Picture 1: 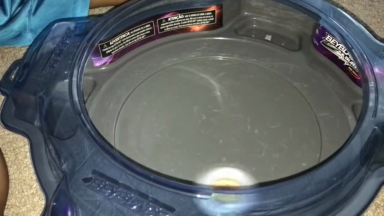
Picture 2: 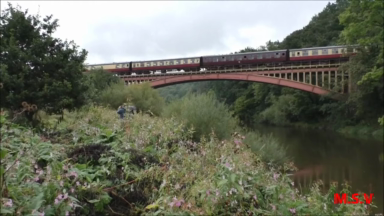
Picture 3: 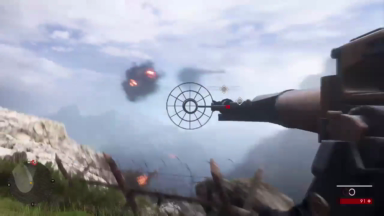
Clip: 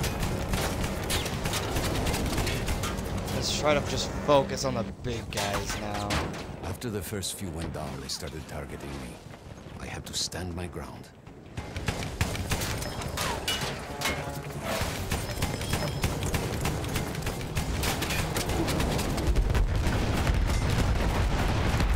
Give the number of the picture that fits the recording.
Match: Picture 3